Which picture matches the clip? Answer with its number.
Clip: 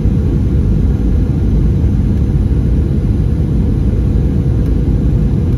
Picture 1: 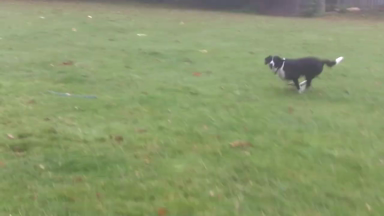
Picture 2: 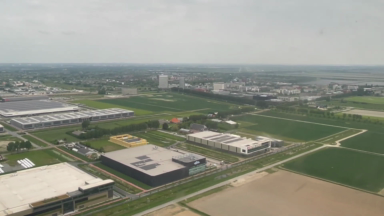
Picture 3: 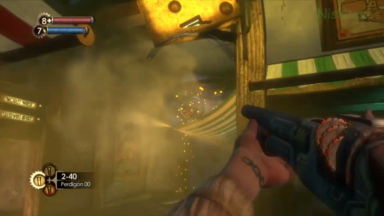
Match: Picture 2